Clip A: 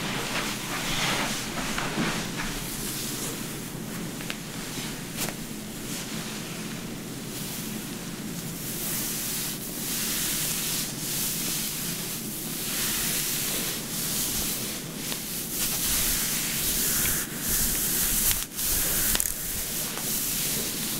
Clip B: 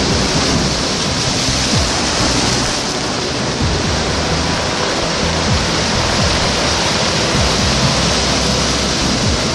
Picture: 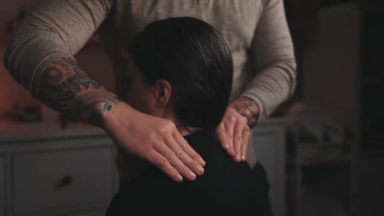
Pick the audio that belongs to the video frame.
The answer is A